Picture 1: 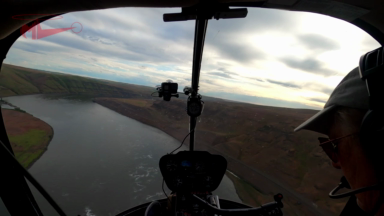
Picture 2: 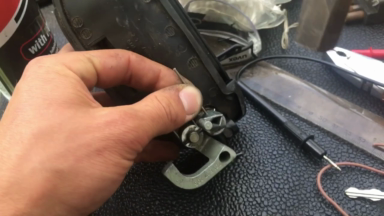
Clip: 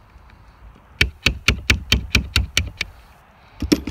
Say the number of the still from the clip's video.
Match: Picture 2